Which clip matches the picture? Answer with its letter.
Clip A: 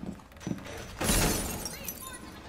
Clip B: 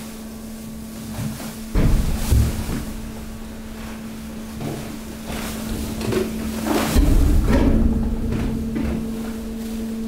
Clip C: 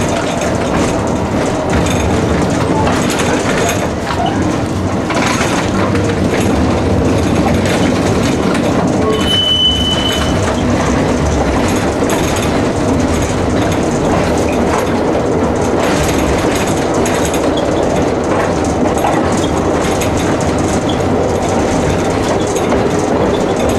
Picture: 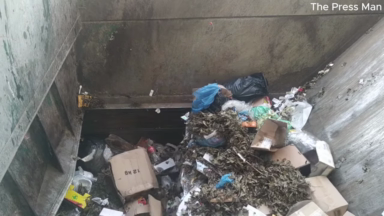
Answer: B